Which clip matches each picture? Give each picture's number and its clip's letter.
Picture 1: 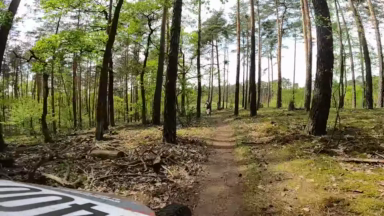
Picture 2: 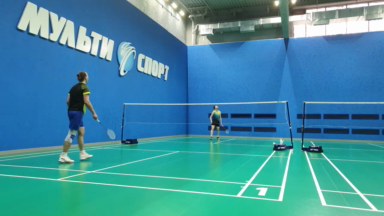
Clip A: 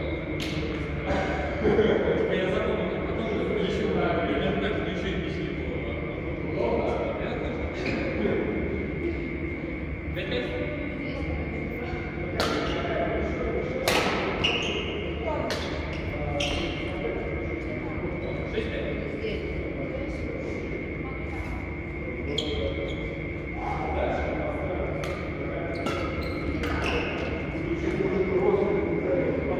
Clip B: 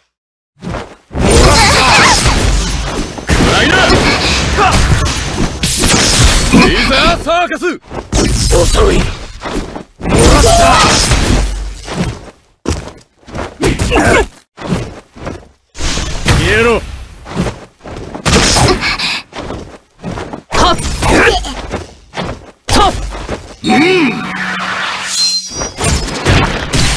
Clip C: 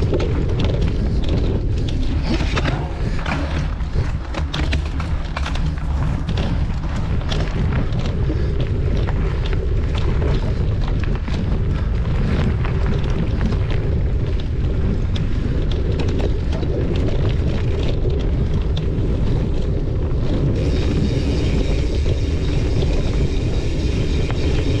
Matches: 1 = C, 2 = A